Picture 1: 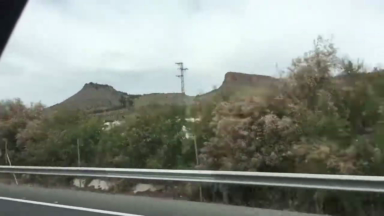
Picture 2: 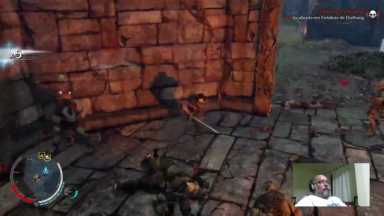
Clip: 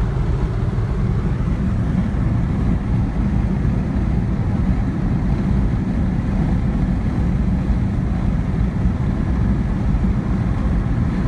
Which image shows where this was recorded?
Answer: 1